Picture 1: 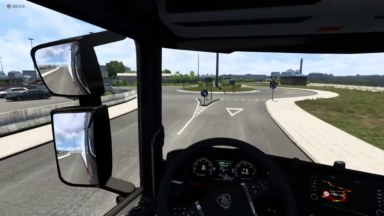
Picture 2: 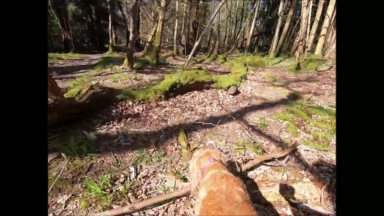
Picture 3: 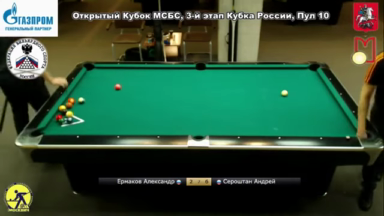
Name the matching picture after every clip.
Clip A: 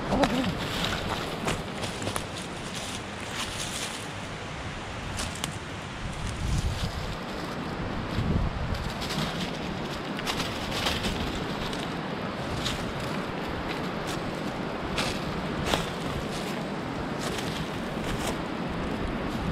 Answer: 2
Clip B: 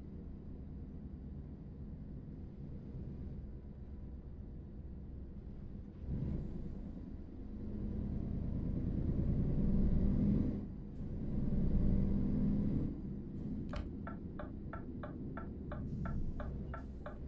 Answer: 1